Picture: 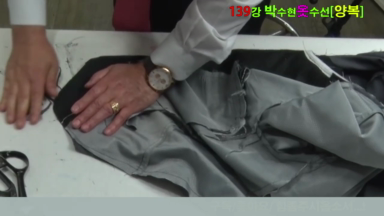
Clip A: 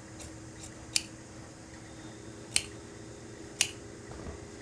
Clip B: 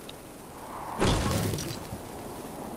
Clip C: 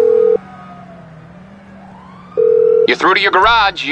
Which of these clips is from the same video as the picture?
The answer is A